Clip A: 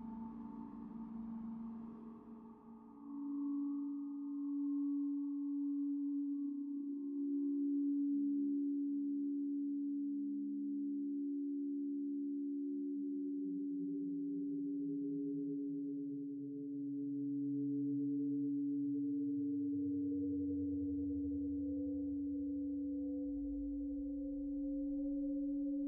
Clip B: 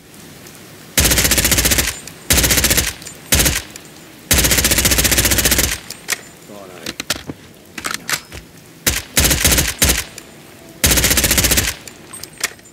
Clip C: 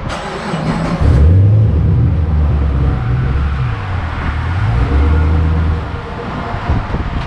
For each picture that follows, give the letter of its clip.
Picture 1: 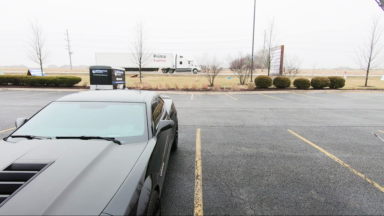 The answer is C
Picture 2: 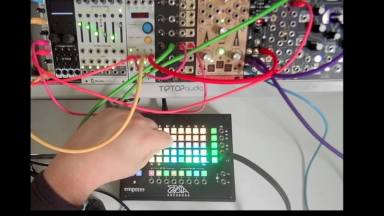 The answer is A